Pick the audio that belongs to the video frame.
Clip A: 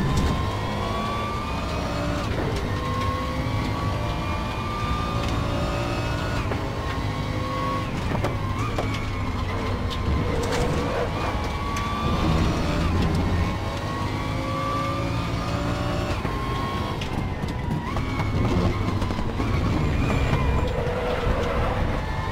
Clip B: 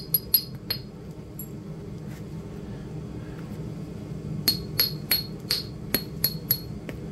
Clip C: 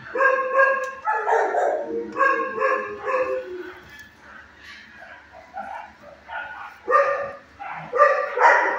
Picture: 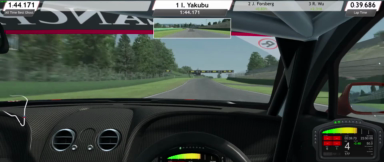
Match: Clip A